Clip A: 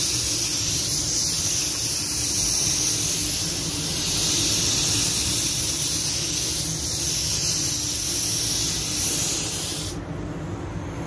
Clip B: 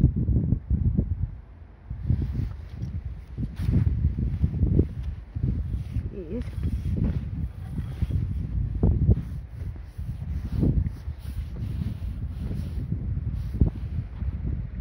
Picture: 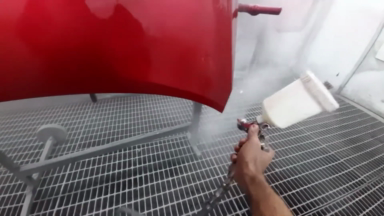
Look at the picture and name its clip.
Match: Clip A